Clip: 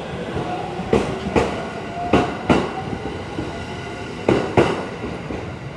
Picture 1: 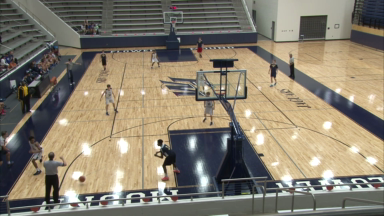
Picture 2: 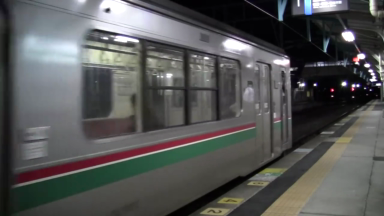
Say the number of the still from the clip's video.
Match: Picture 2